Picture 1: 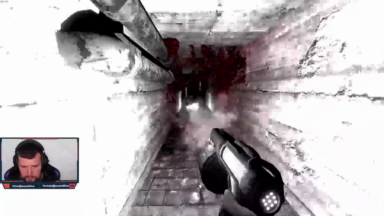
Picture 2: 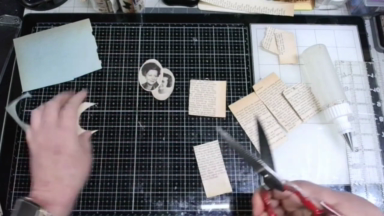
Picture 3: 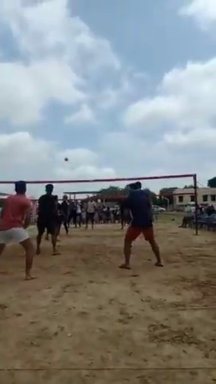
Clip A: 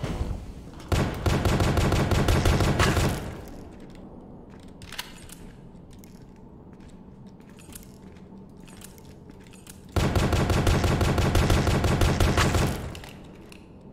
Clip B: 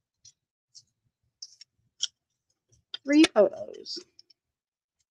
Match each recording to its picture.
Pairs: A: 1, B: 2